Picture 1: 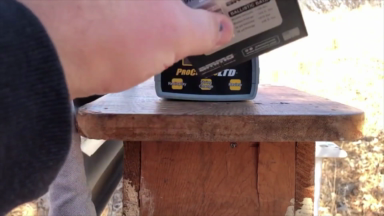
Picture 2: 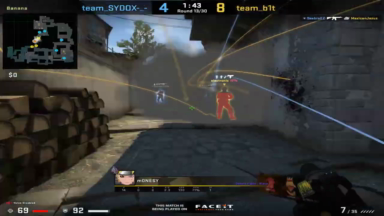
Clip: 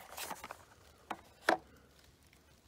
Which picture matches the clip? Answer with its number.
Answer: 1